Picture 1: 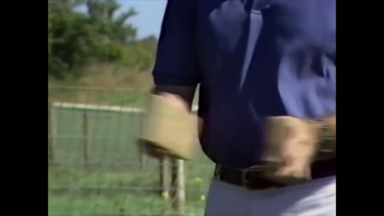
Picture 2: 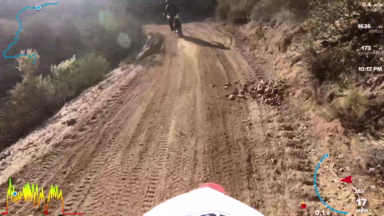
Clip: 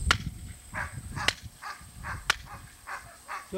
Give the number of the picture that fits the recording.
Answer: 1